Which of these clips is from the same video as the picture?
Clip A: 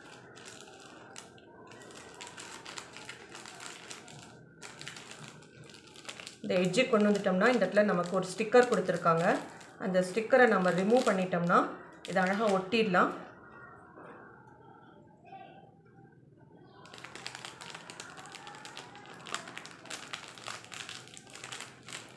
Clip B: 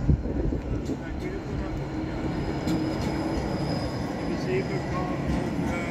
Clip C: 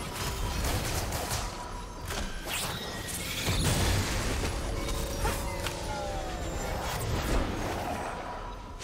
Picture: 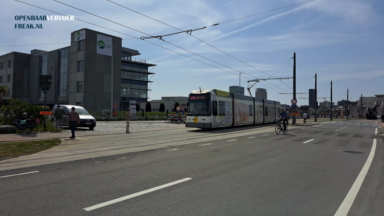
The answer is B